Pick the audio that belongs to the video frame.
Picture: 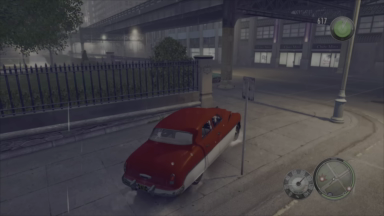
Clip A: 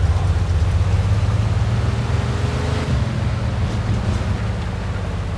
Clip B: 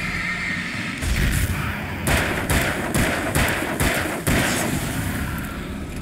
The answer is A